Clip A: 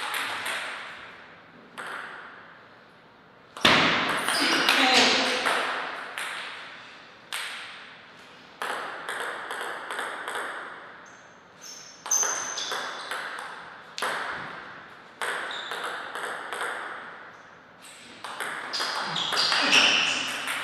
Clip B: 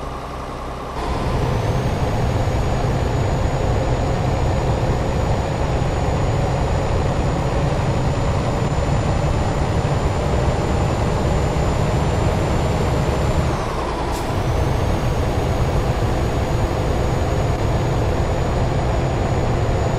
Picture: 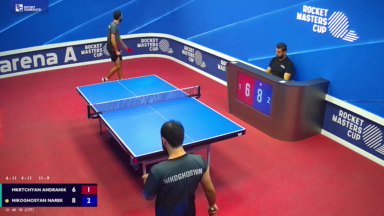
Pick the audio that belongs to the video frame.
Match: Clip A